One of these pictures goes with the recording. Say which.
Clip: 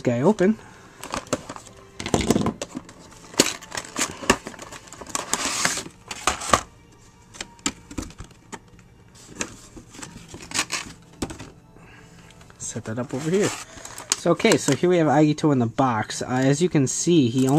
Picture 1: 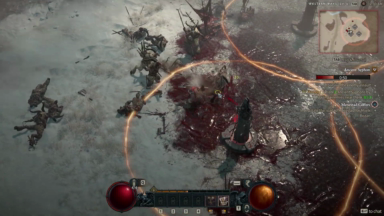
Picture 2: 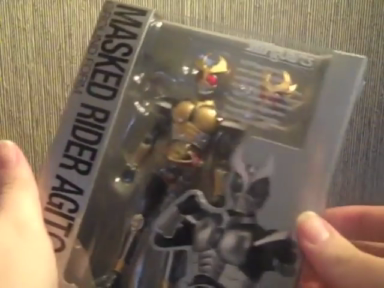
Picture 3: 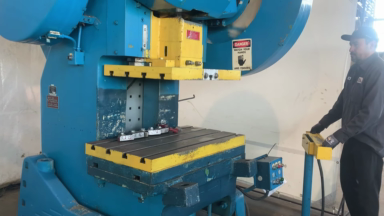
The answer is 2